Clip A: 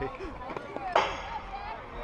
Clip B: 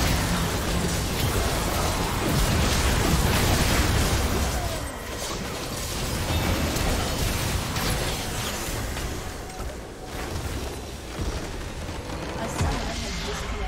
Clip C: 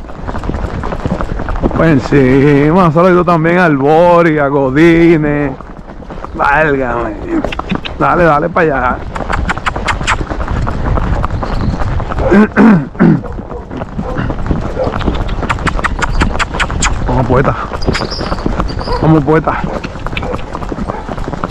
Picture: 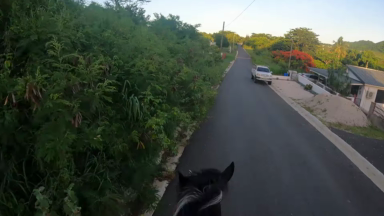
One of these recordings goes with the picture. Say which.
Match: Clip C